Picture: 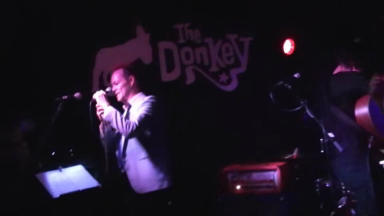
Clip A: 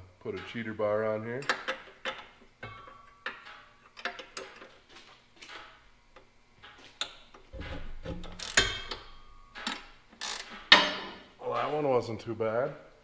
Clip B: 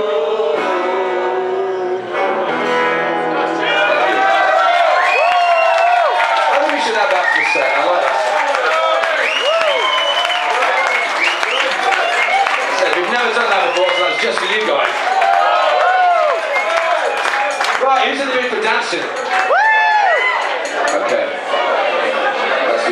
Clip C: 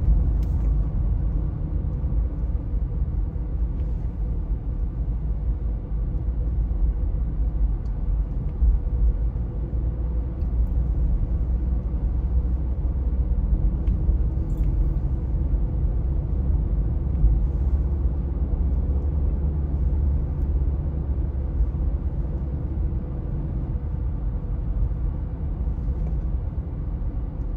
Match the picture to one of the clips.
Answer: B